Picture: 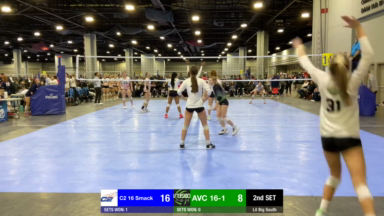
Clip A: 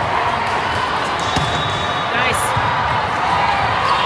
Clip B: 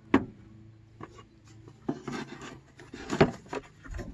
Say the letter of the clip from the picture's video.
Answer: A